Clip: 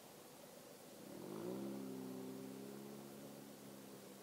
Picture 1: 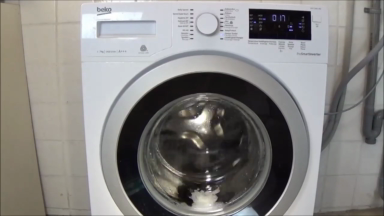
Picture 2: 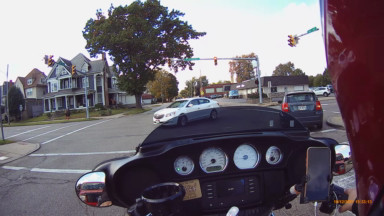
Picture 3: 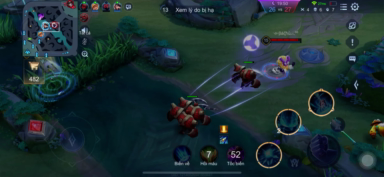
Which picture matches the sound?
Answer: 2